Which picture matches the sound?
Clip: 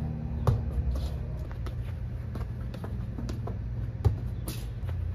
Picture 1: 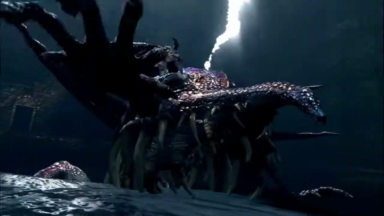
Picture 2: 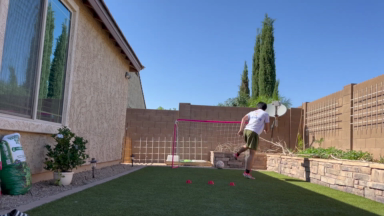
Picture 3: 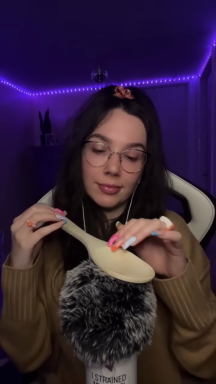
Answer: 2